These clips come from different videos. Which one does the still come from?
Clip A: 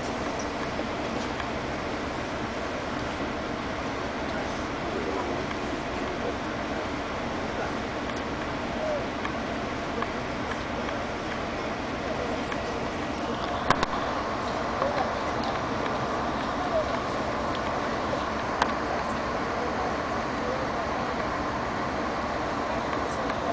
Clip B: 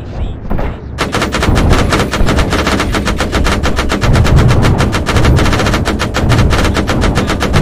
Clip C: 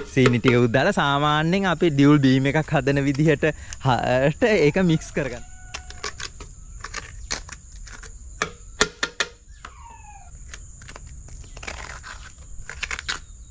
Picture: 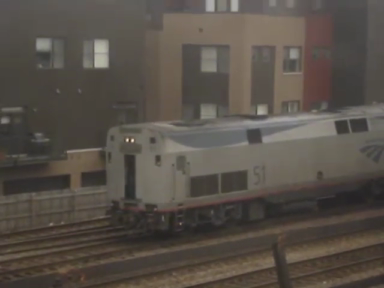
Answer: A